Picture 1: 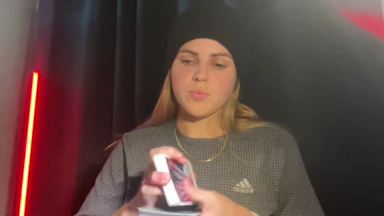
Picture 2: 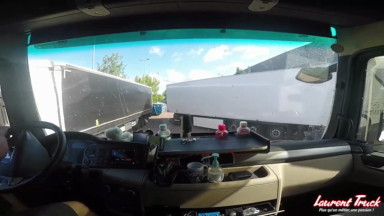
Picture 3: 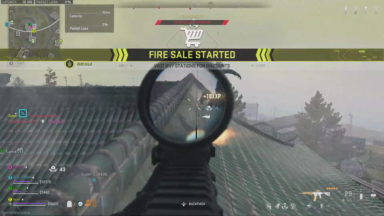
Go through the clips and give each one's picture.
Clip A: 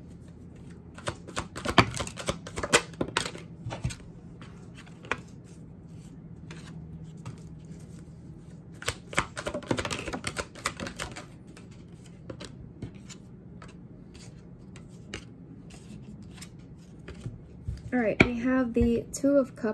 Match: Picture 1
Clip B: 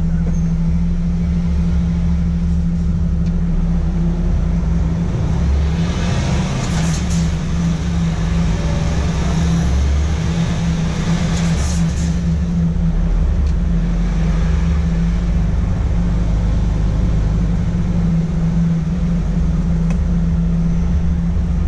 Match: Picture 2